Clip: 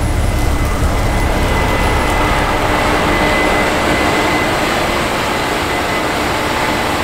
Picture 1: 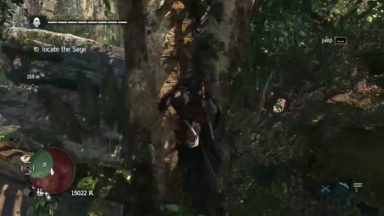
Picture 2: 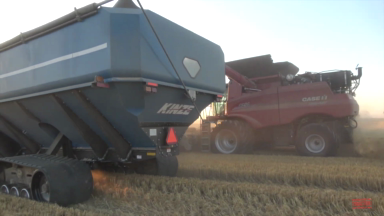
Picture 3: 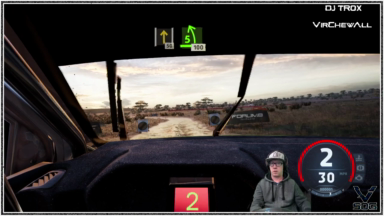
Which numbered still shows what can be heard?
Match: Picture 2